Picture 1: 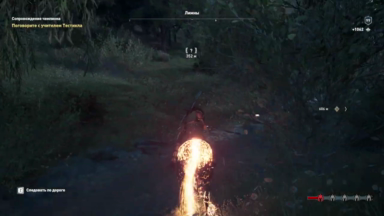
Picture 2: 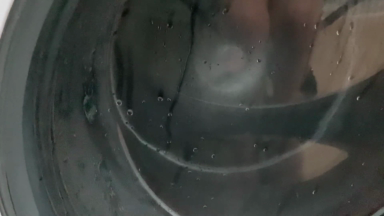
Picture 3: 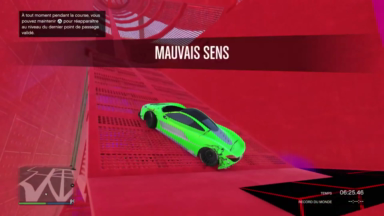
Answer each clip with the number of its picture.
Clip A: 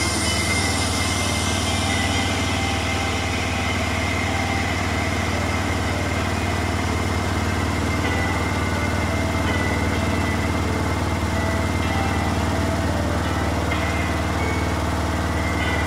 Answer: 2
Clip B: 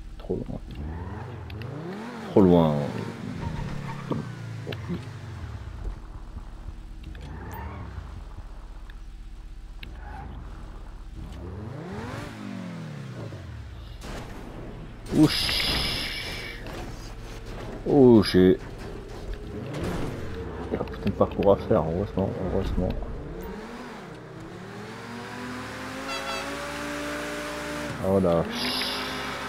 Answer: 3